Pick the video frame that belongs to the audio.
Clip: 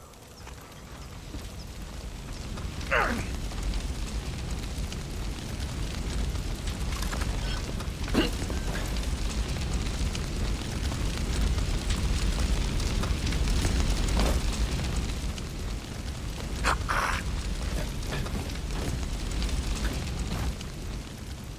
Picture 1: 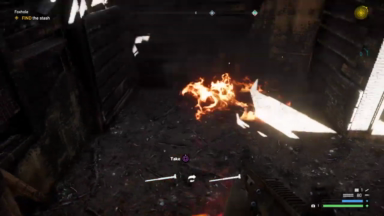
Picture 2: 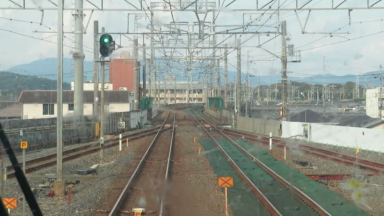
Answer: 1